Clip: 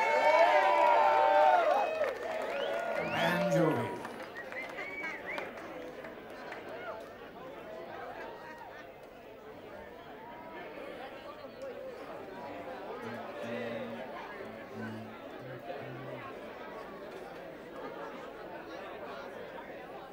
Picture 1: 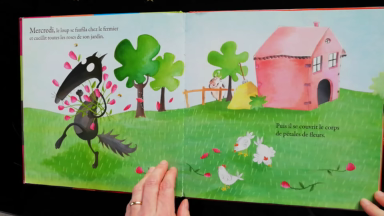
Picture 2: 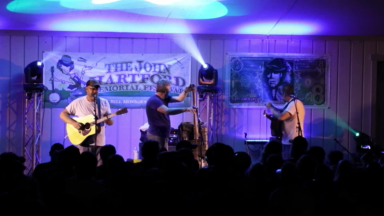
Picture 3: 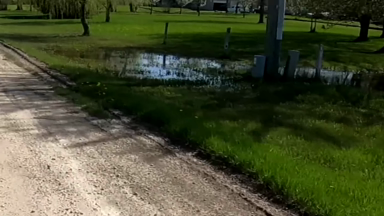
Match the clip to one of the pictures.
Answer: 2